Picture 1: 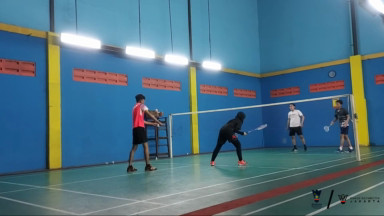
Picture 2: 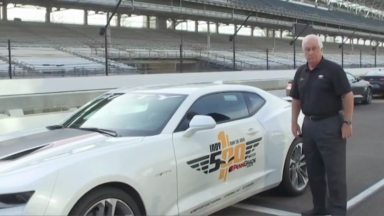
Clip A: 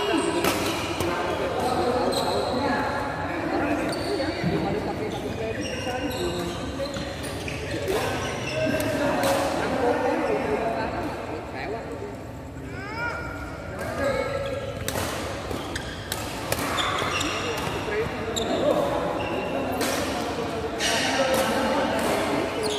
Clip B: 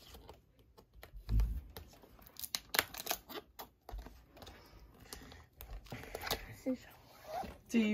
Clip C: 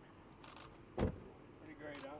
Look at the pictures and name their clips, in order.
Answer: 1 A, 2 C